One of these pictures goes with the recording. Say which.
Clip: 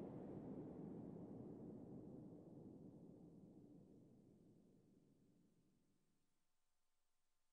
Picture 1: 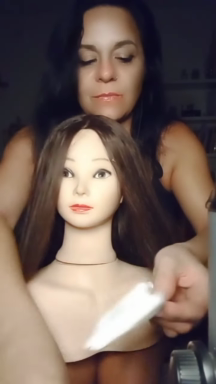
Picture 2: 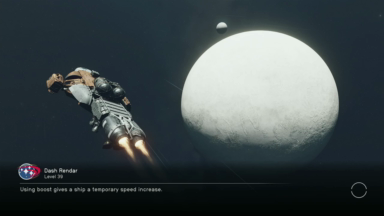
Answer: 2